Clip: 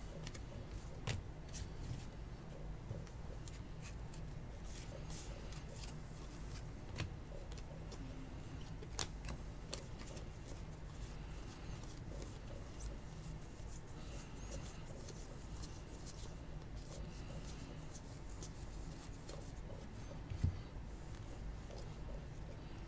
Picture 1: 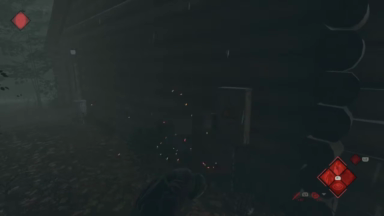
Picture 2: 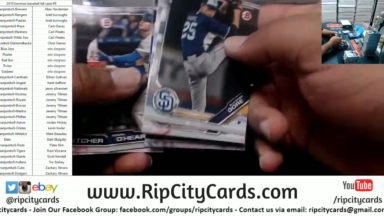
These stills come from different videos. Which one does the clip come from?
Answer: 2